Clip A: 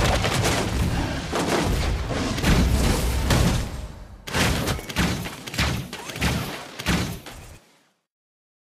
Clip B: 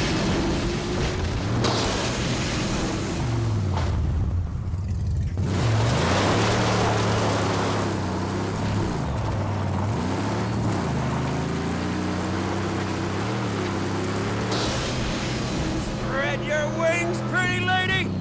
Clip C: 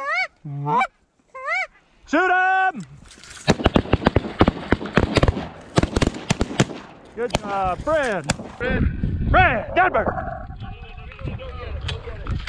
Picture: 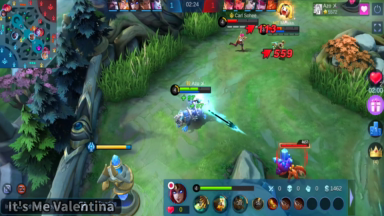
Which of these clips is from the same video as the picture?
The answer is A